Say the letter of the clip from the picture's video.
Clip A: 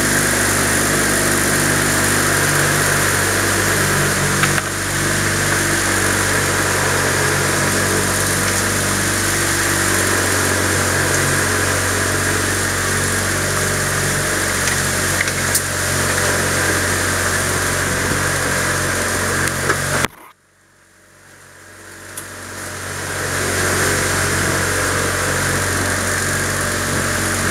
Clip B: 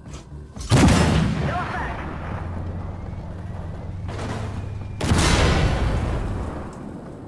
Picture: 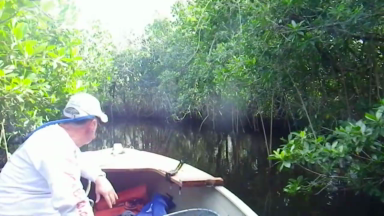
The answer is A